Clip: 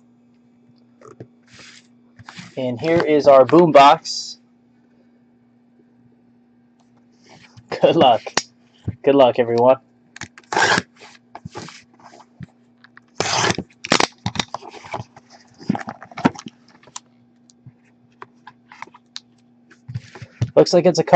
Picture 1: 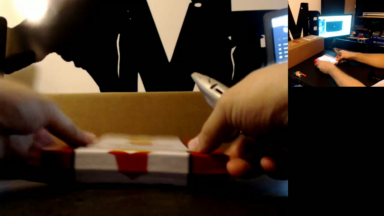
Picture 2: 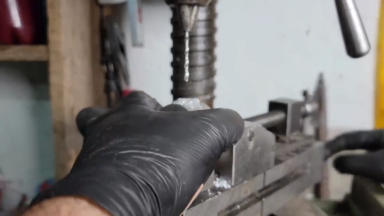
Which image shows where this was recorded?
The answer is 1